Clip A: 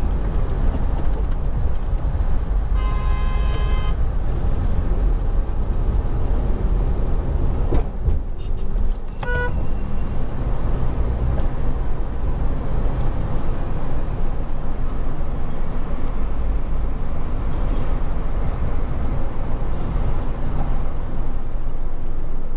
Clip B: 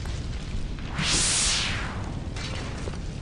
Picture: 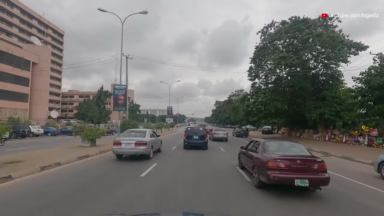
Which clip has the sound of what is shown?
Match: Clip A